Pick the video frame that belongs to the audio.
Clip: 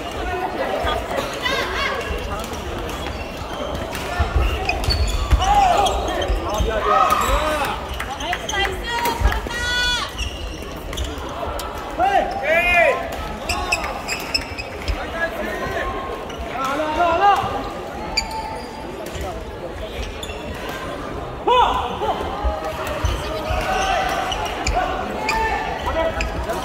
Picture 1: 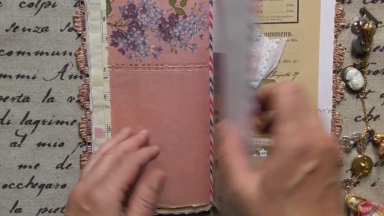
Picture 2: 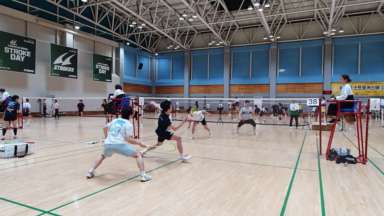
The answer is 2